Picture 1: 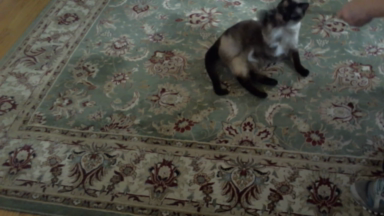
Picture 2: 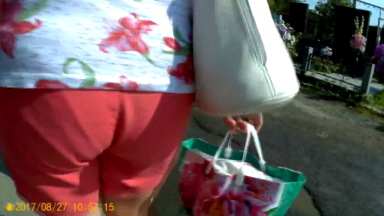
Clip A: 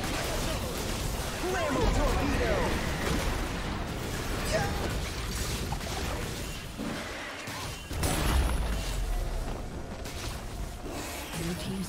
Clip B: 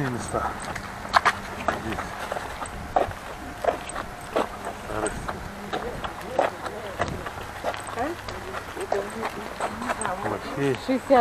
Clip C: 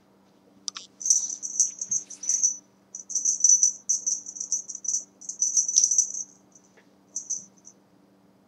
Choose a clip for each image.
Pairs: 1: C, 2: B